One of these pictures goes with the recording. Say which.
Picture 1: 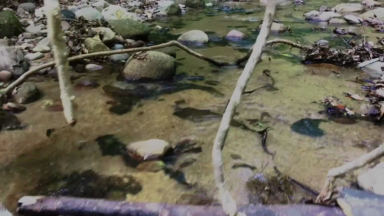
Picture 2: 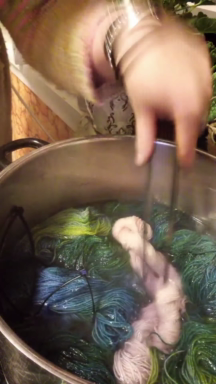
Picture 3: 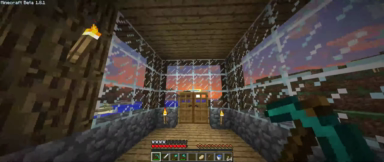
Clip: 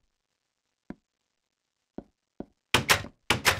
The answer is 3